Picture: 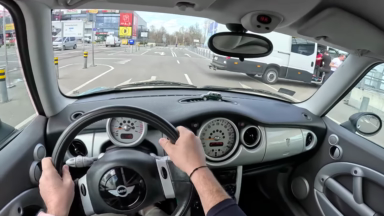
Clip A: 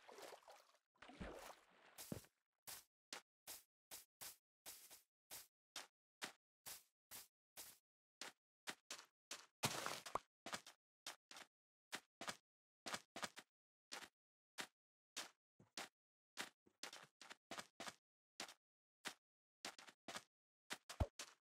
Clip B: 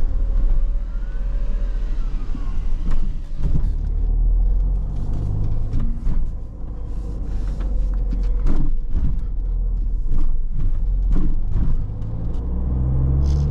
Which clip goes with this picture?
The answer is B